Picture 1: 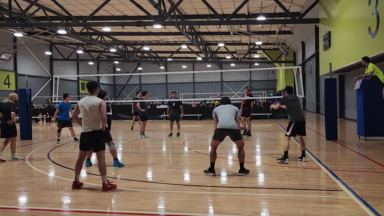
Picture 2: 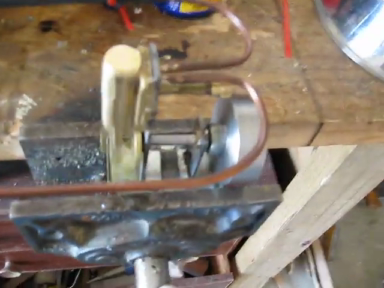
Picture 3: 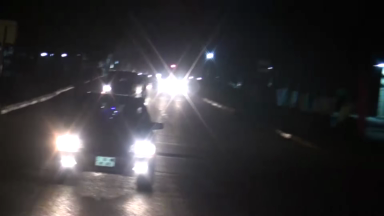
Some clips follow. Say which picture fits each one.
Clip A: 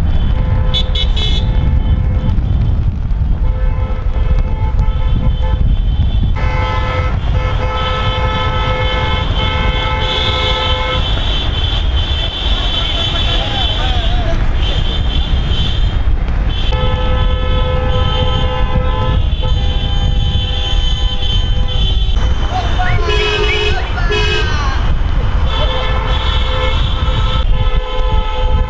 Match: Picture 3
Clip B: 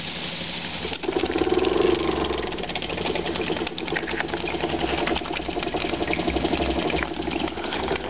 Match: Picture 2